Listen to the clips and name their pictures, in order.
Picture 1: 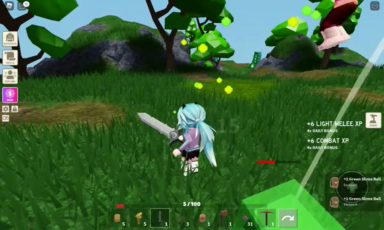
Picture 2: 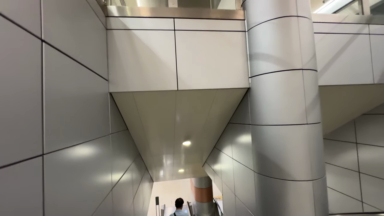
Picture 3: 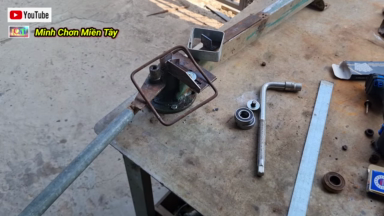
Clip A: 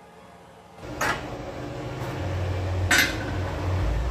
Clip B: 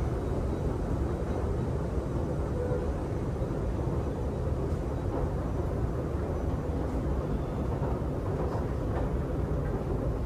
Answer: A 3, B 2